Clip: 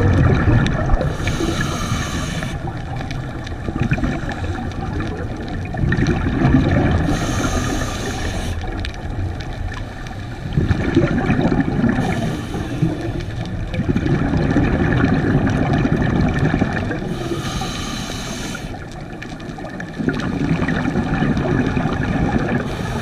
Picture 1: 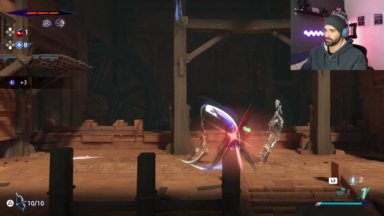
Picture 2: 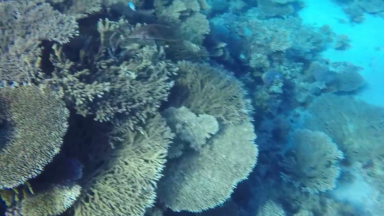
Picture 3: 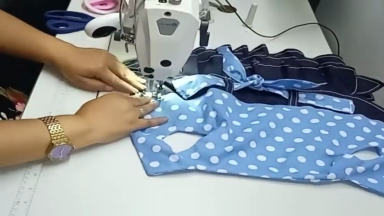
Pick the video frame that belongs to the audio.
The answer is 2